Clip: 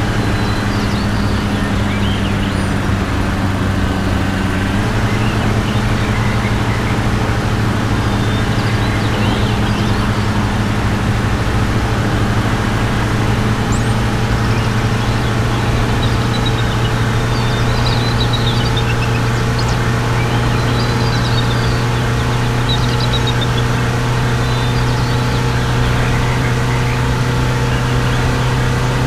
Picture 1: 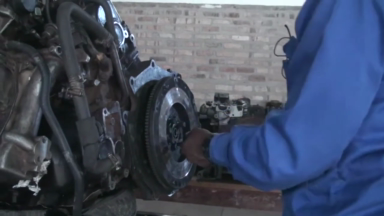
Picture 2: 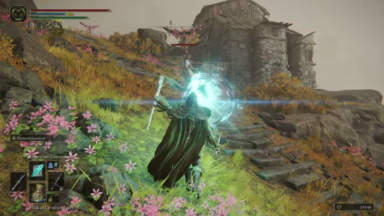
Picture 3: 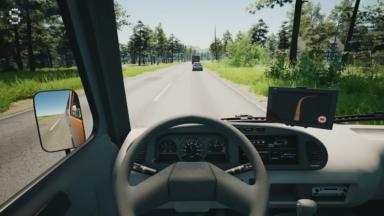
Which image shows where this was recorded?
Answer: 3